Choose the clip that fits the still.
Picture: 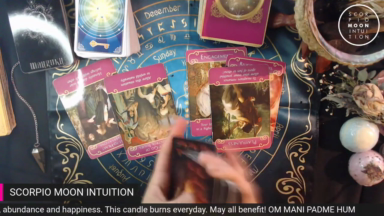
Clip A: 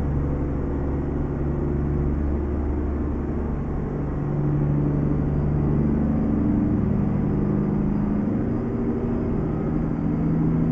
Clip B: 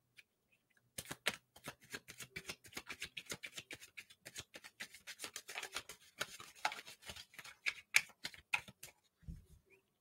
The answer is B